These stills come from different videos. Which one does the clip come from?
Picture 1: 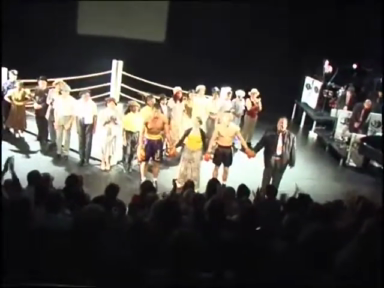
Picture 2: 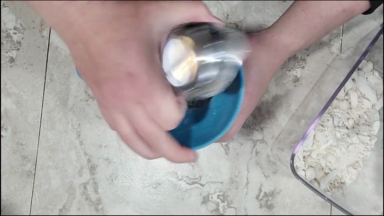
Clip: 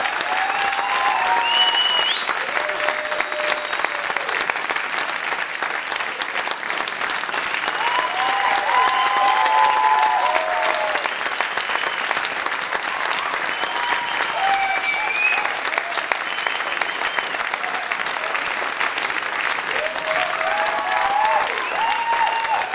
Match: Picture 1